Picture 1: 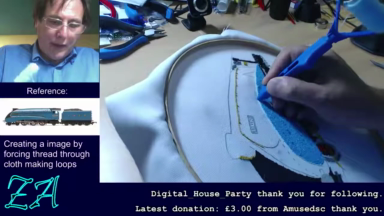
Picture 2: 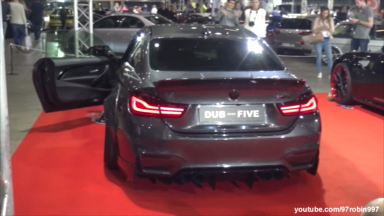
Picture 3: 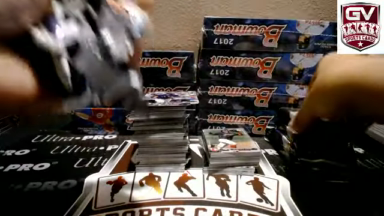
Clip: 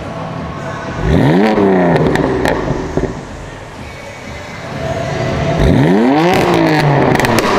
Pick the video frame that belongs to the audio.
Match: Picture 2